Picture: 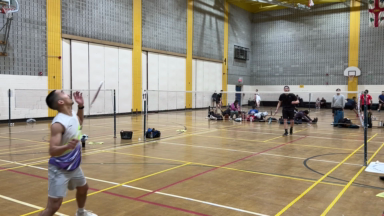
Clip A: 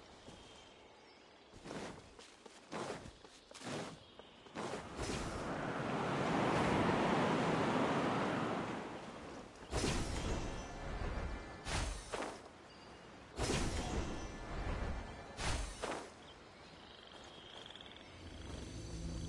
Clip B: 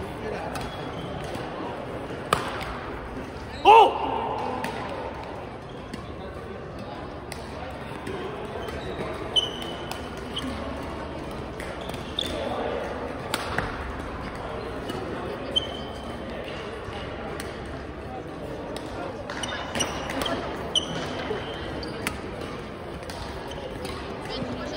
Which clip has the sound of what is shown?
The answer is B